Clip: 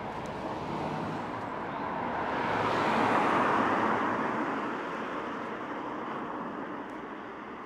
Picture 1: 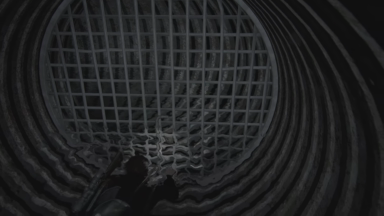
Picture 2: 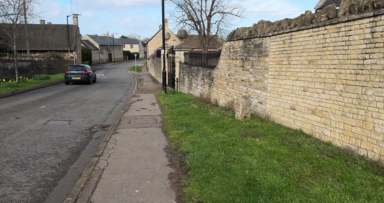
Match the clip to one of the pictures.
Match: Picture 2